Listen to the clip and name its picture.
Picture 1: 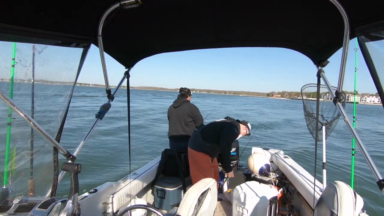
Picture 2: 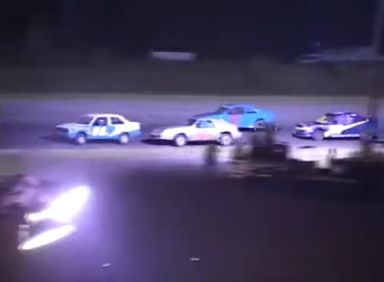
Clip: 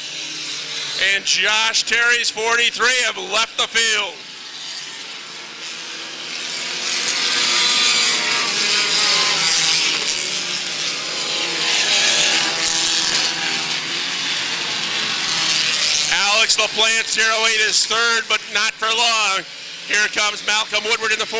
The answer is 2